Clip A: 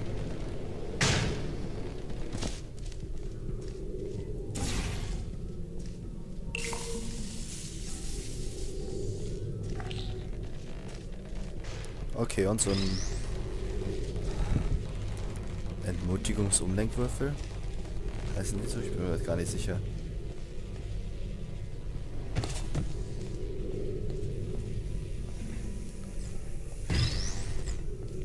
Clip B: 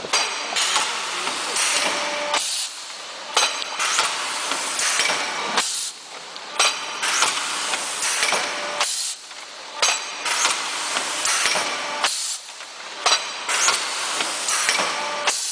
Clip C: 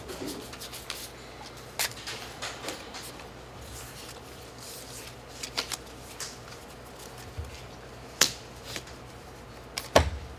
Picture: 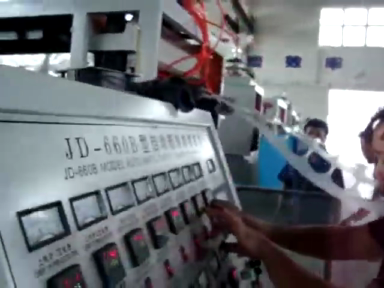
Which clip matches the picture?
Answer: B